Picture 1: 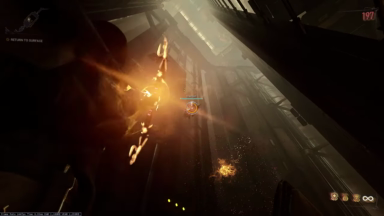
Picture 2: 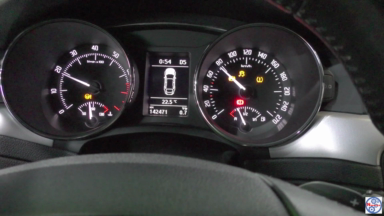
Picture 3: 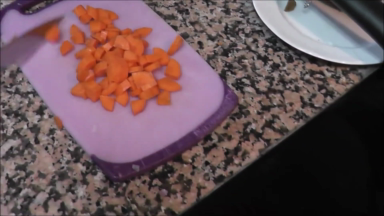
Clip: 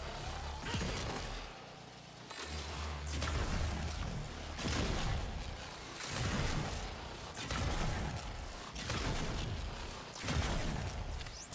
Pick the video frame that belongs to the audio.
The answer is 1